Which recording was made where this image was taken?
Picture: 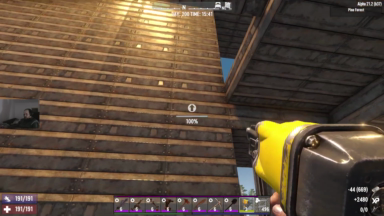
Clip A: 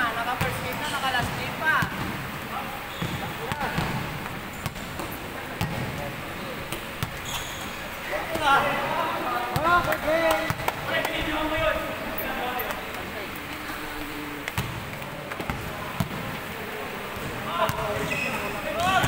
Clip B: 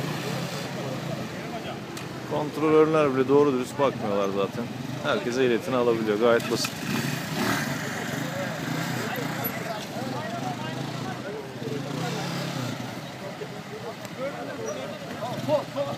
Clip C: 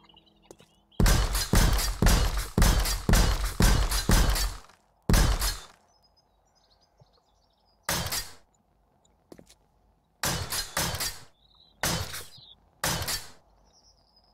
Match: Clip C